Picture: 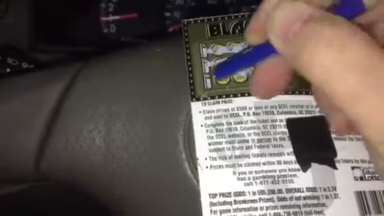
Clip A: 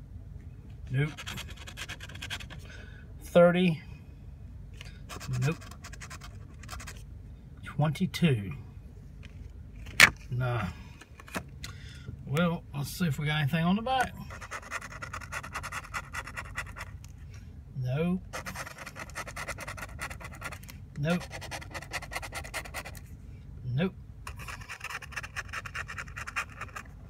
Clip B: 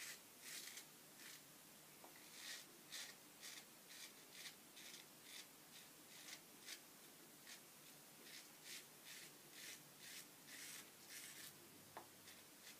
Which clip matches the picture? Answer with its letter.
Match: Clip A